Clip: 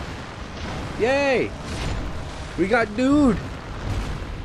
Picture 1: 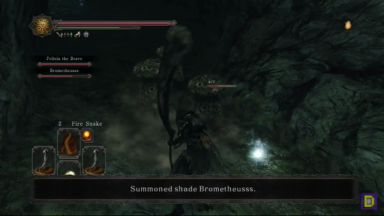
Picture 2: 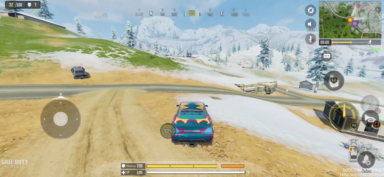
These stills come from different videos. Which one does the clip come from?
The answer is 1